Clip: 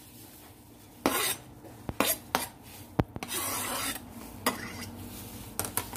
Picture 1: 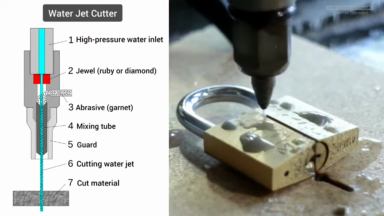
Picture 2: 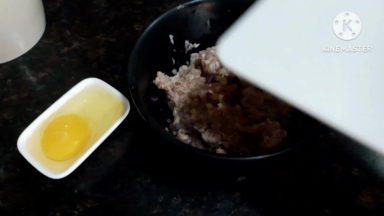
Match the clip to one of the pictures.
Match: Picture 2